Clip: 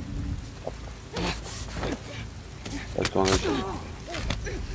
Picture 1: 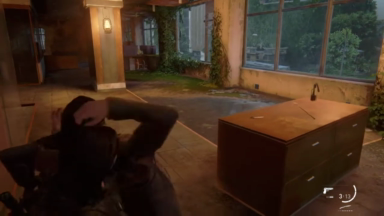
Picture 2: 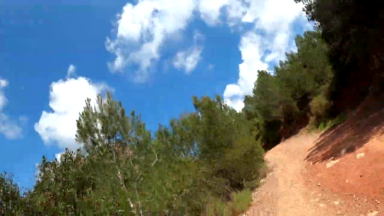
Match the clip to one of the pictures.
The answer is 1